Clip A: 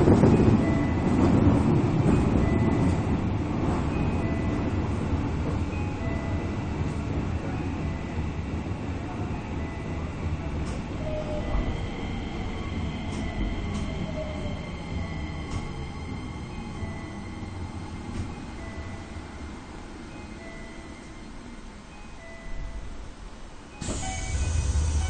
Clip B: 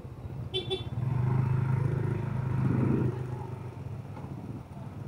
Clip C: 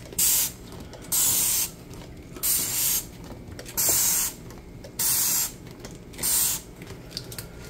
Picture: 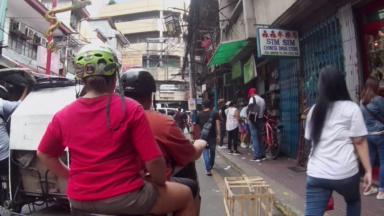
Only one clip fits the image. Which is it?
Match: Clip B